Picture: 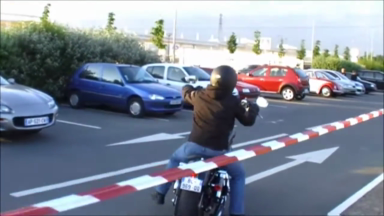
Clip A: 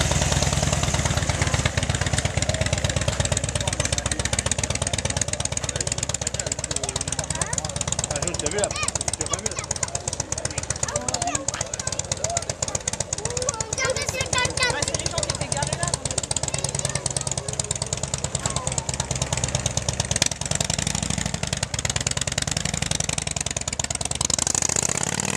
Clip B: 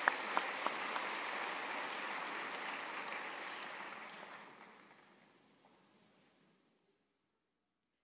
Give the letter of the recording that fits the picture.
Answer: A